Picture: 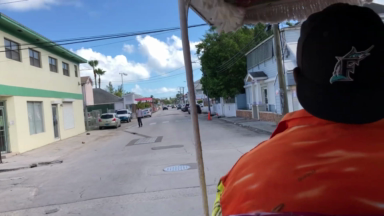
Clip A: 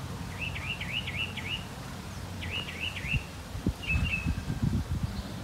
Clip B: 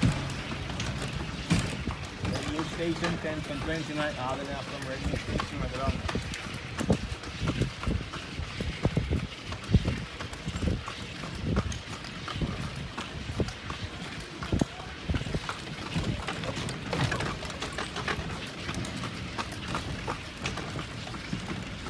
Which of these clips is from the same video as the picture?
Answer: B